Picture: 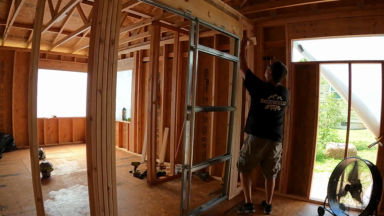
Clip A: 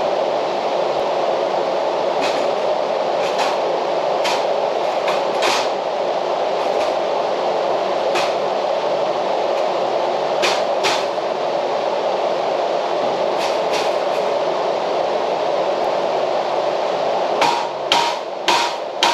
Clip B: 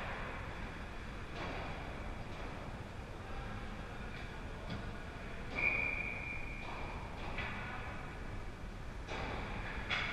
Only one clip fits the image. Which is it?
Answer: A